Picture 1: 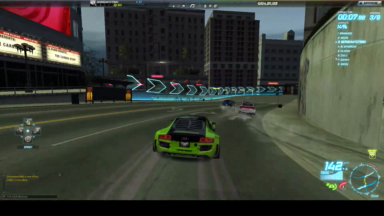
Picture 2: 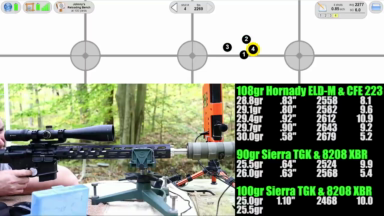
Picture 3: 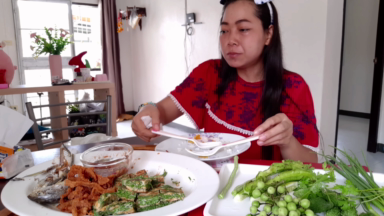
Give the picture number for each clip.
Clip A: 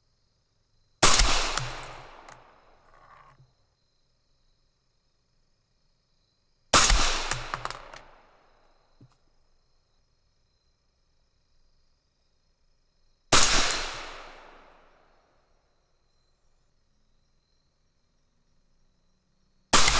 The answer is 2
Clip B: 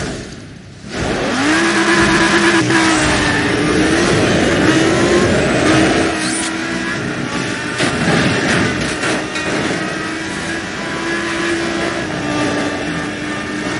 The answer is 1